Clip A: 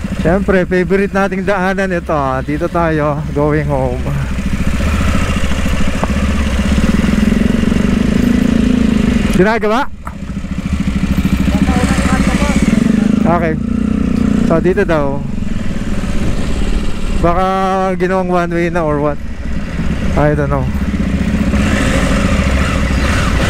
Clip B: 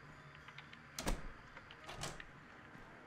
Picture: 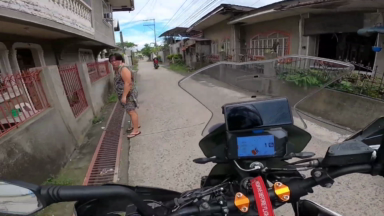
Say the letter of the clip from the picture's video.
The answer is A